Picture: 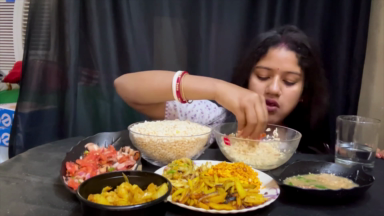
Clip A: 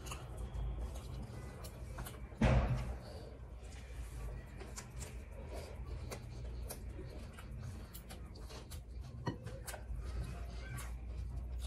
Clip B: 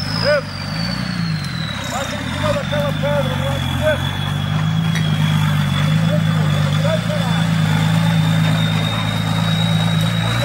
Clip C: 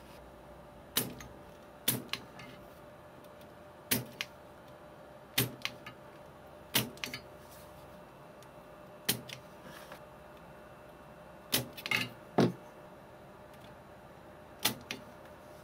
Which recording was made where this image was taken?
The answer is A